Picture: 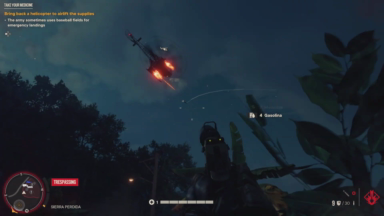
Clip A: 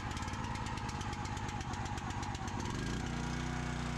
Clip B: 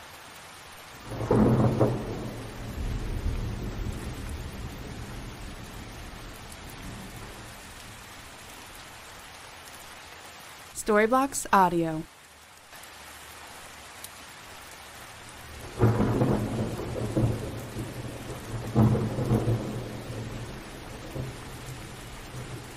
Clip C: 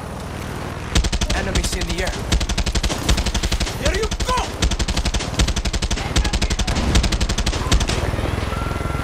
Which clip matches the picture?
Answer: C